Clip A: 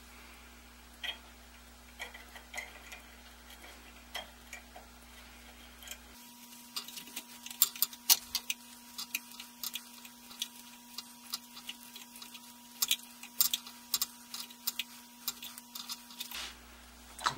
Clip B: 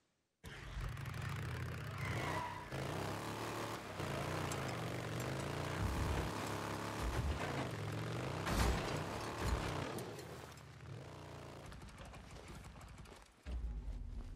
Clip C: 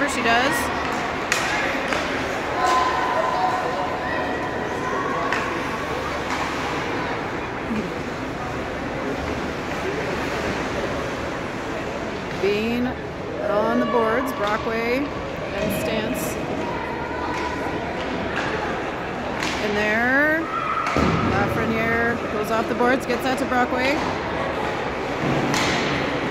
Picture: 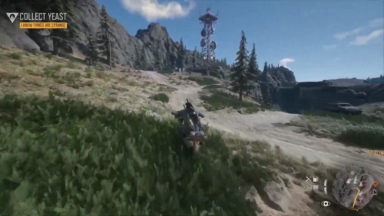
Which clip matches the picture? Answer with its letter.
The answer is B